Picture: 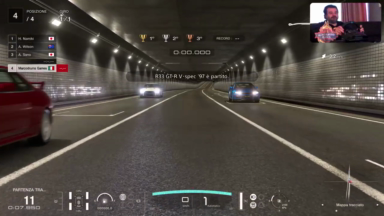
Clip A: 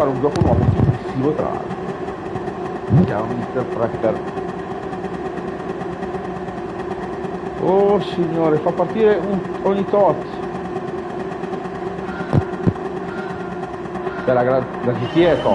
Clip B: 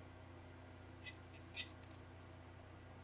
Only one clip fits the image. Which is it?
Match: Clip A